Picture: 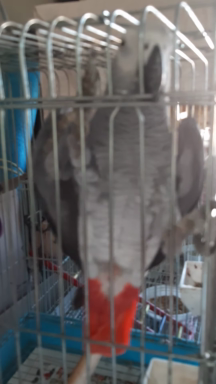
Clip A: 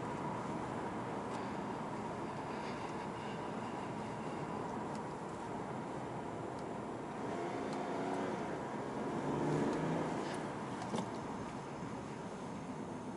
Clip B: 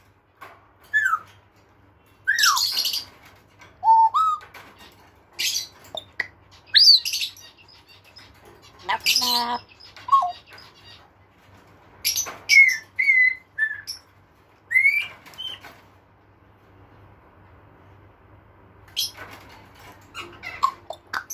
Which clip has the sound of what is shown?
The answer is B